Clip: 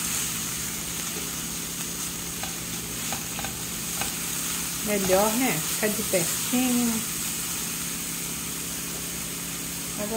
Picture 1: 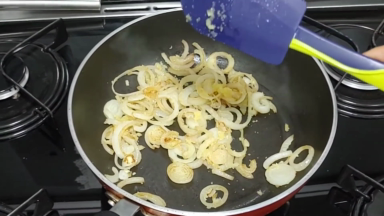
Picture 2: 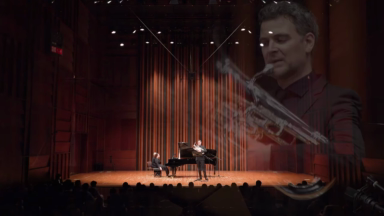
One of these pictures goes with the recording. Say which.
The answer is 1